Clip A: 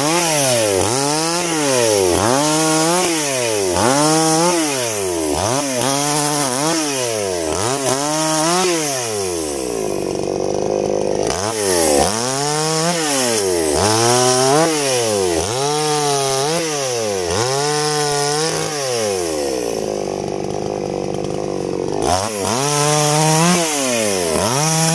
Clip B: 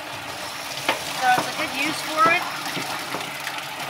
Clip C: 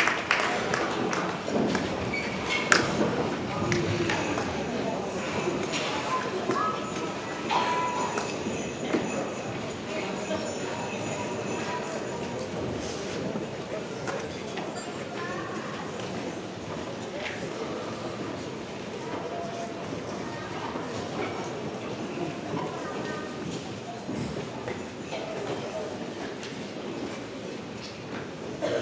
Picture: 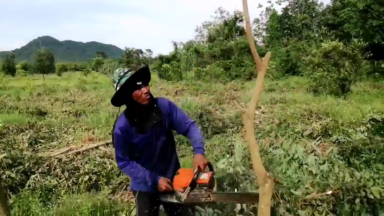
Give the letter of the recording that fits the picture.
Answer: A